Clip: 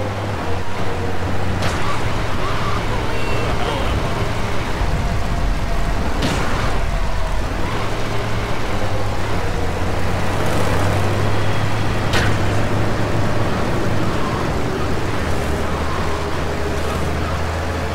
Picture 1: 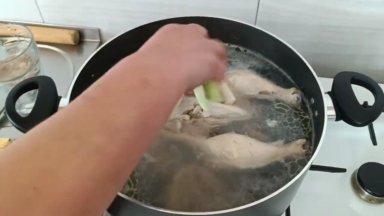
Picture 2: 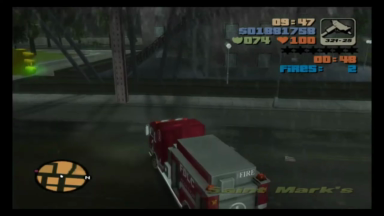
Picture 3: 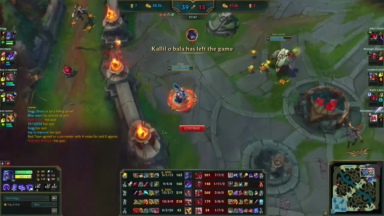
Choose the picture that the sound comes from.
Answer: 2